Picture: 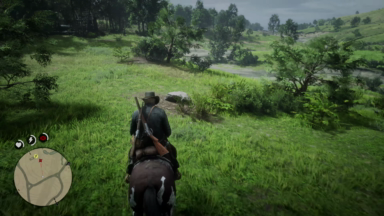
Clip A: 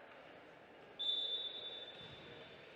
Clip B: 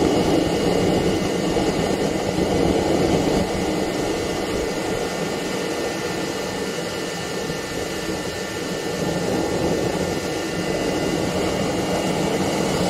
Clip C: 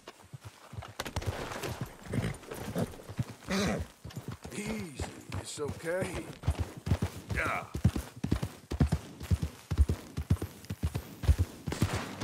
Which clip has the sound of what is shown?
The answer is C